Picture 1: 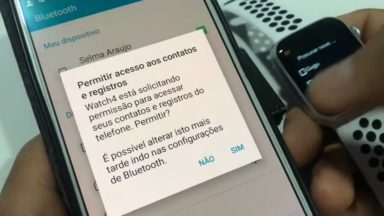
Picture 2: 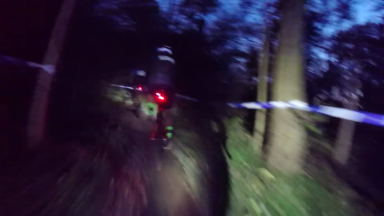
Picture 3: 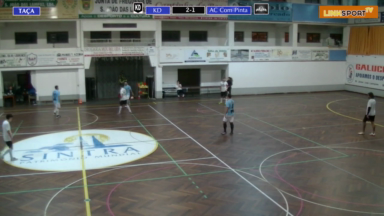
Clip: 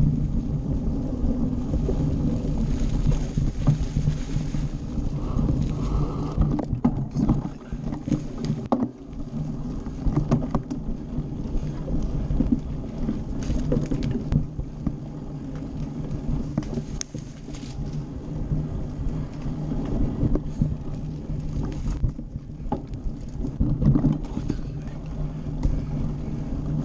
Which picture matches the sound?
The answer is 2